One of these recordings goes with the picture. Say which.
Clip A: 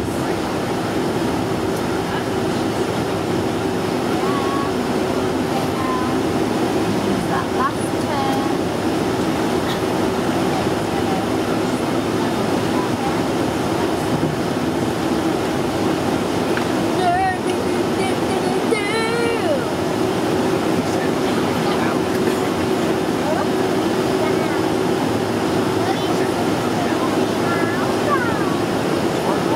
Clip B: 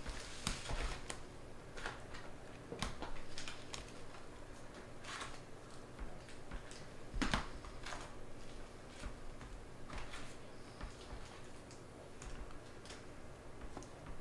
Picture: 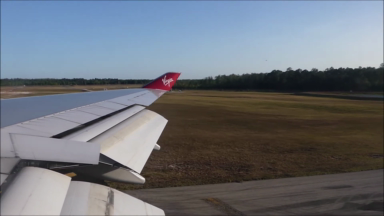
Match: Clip A